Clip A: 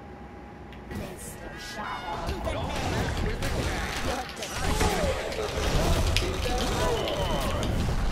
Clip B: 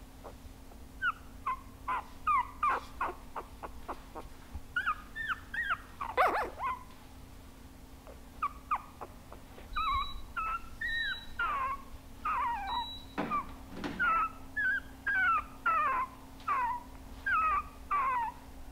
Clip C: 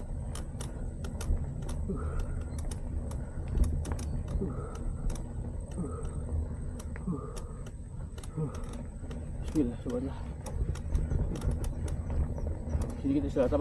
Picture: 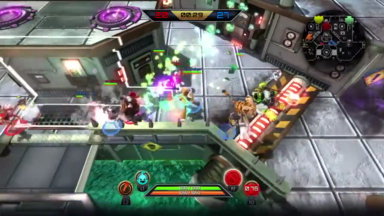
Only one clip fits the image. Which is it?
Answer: A